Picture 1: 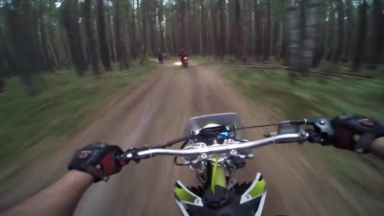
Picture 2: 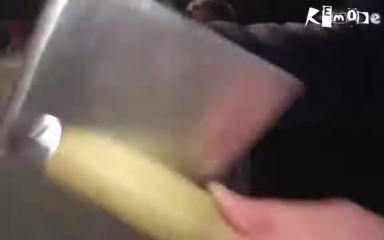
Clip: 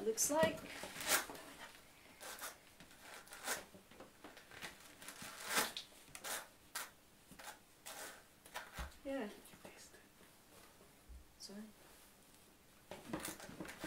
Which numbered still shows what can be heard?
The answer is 2